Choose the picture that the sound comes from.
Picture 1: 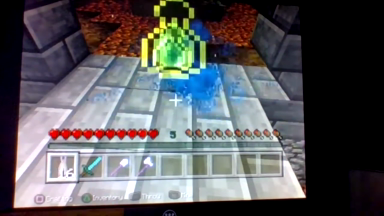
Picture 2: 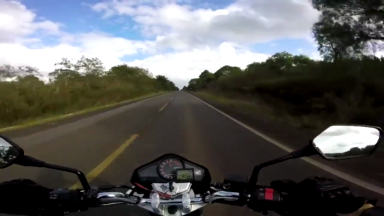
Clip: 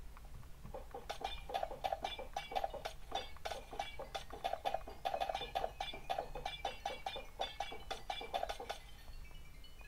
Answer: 1